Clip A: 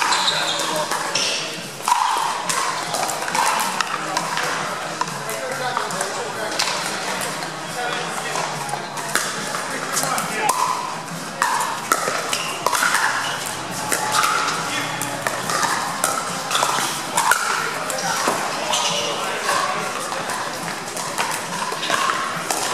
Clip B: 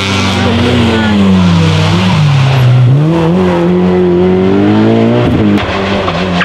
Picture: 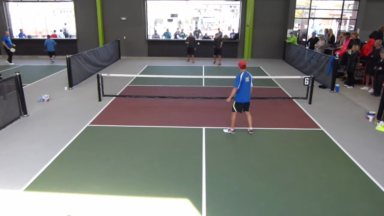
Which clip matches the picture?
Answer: A